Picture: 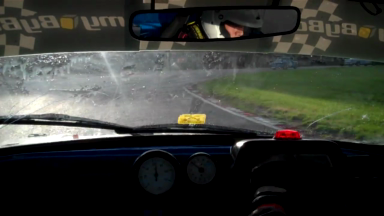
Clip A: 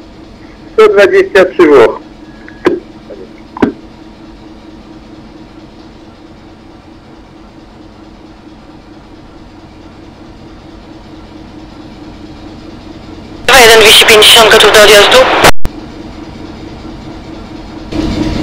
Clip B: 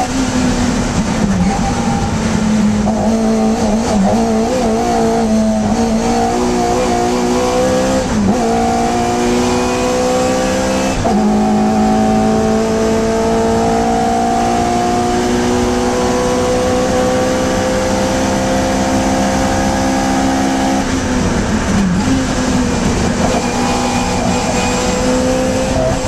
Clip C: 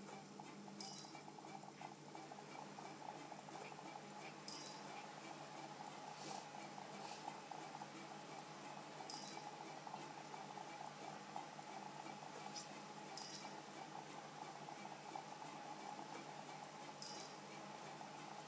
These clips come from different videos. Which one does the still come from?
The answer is B